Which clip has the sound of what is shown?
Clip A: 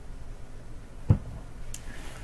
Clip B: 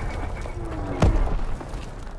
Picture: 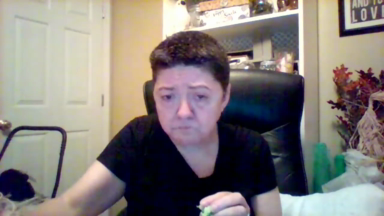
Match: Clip A